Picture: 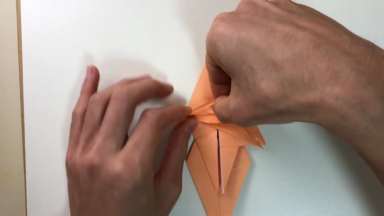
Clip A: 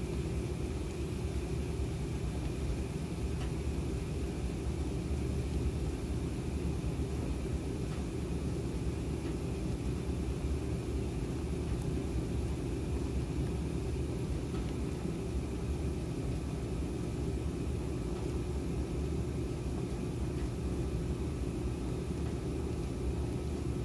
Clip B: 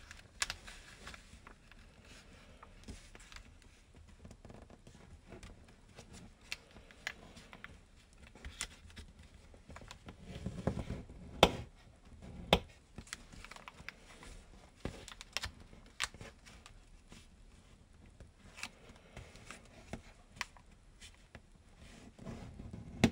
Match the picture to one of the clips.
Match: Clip B